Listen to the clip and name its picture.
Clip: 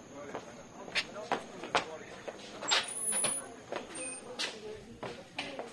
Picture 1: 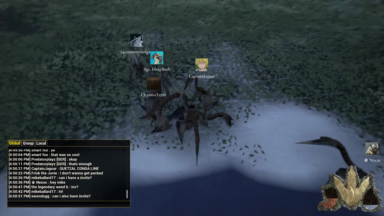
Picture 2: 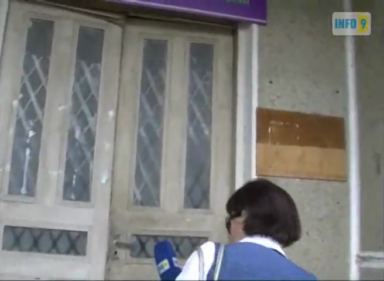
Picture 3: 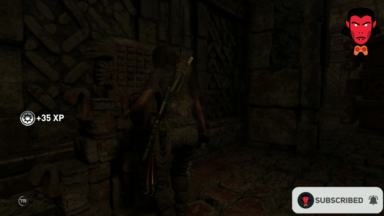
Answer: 2